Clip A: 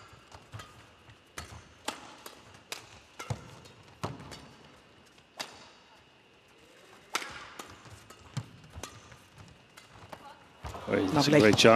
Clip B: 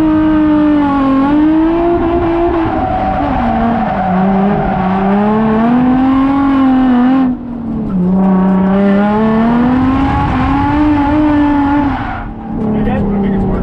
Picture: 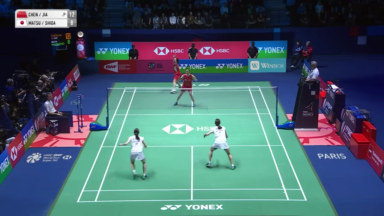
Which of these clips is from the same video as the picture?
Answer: A